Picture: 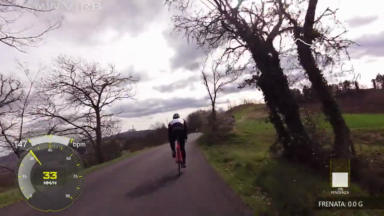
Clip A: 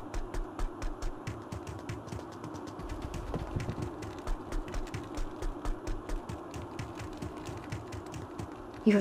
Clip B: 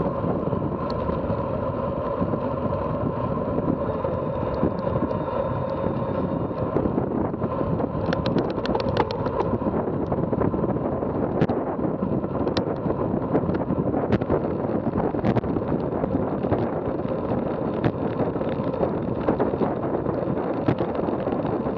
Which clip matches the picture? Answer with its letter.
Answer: B